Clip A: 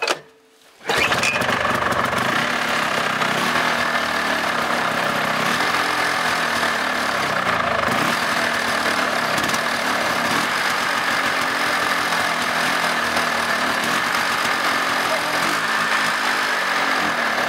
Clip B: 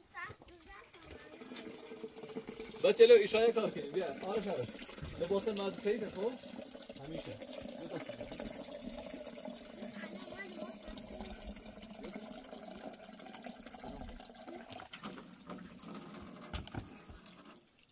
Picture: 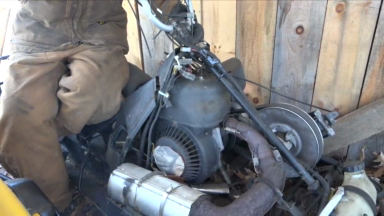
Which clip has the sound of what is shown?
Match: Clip A